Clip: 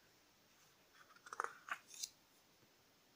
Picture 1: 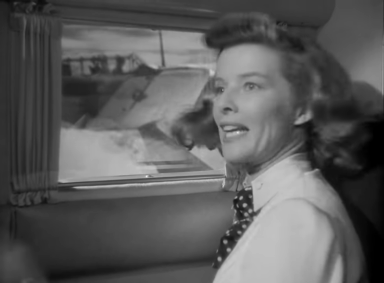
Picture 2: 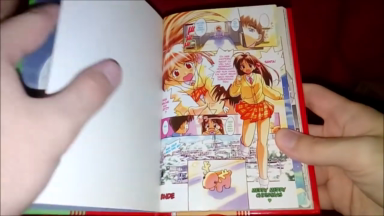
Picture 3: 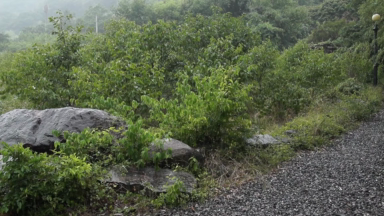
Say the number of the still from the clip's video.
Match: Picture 2